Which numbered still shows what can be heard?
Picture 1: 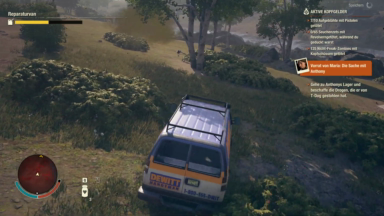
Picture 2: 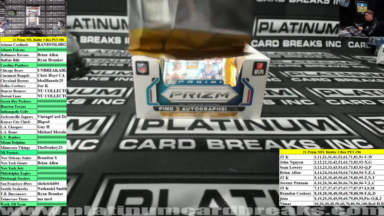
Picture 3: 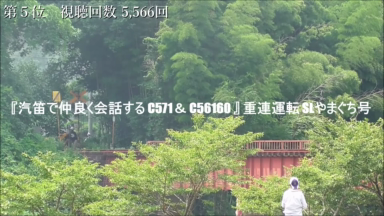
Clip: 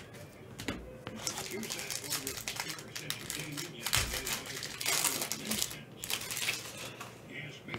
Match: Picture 2